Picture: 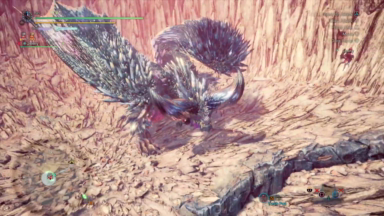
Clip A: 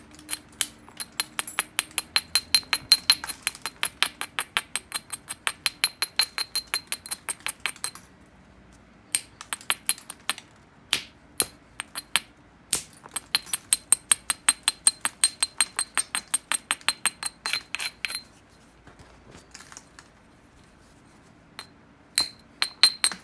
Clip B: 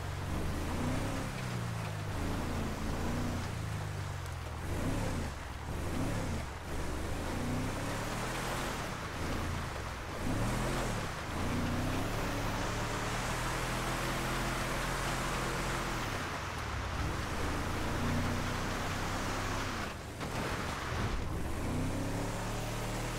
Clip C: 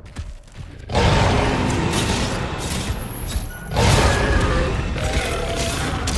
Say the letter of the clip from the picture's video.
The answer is C